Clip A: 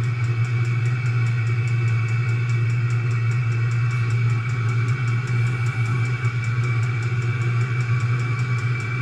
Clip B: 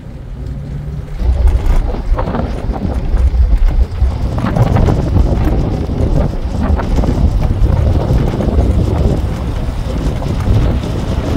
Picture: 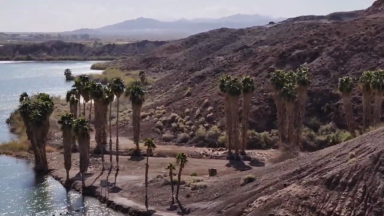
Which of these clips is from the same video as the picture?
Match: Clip B